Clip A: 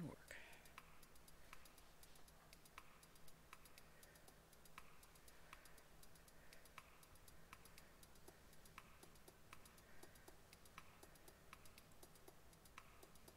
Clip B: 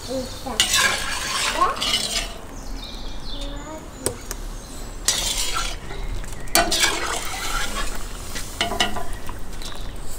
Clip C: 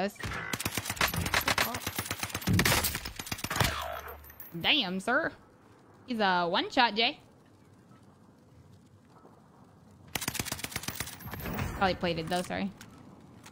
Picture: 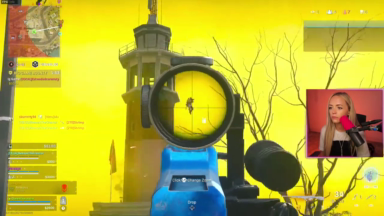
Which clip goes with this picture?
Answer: C